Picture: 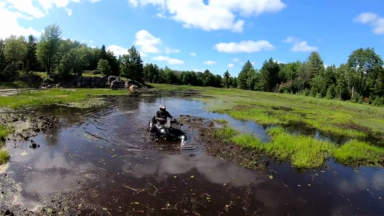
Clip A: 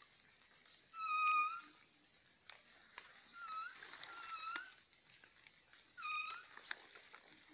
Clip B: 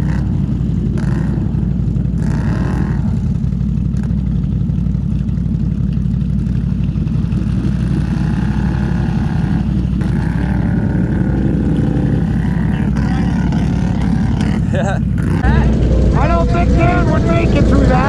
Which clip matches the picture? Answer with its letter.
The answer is B